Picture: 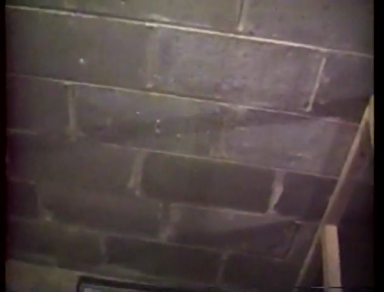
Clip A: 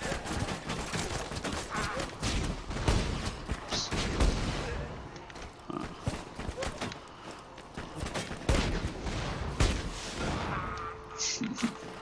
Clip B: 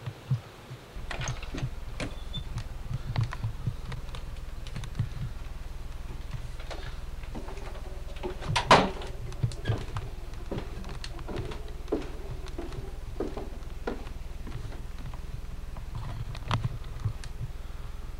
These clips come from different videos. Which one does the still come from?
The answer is B